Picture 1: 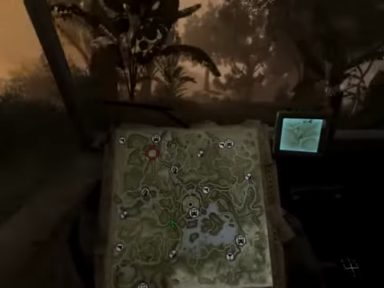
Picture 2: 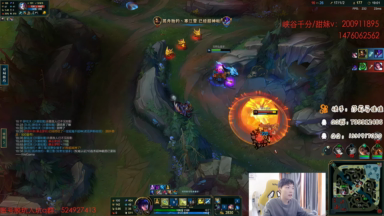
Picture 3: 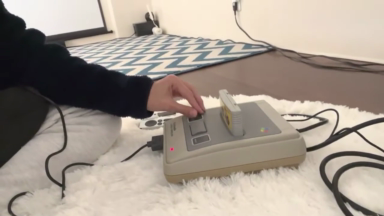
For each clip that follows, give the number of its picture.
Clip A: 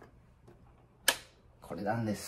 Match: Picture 3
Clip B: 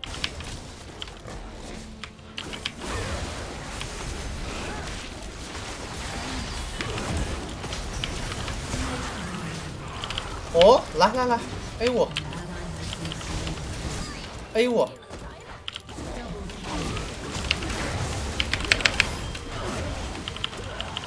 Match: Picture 2